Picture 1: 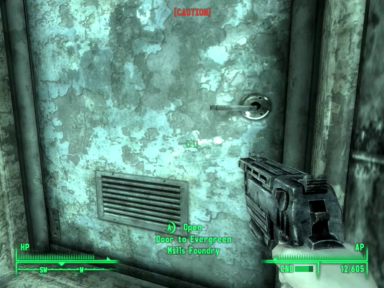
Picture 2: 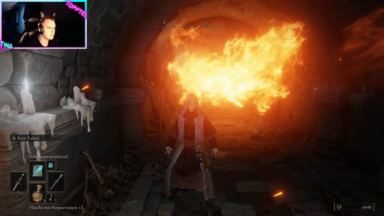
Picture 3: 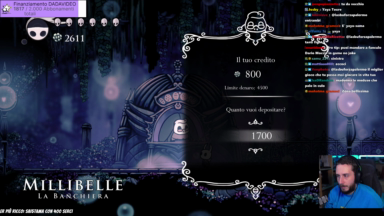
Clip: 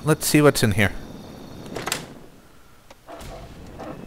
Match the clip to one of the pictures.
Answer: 1